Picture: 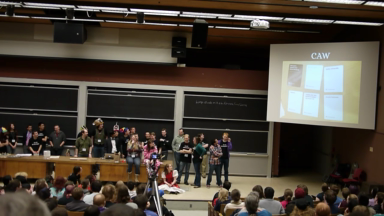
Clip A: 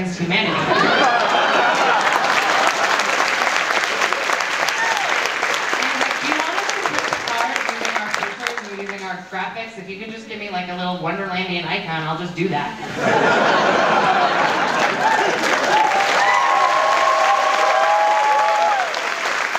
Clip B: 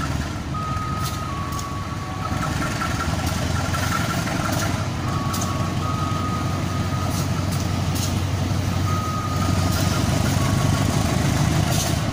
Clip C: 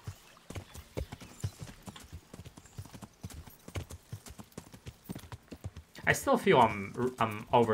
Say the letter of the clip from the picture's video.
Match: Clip A